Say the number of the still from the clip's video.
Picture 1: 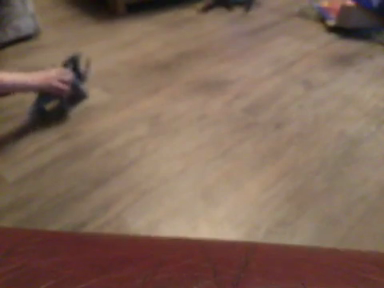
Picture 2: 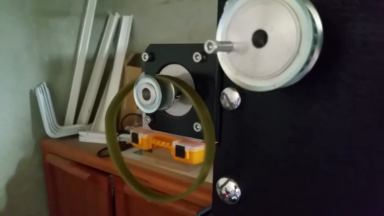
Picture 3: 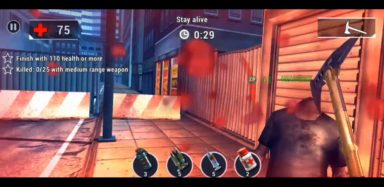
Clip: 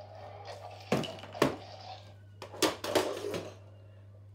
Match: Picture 1